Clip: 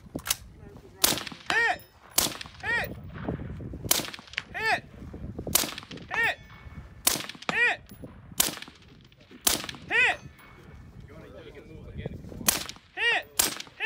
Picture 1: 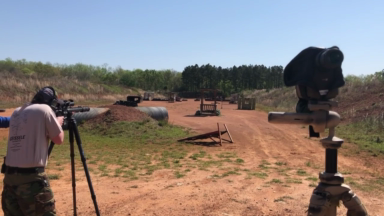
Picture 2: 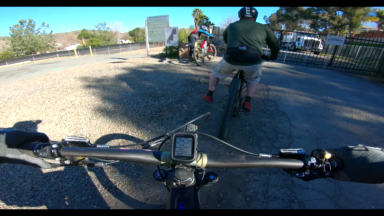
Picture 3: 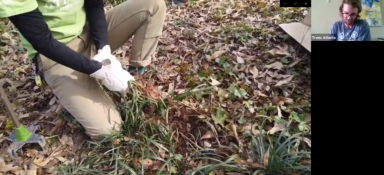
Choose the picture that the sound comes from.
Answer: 1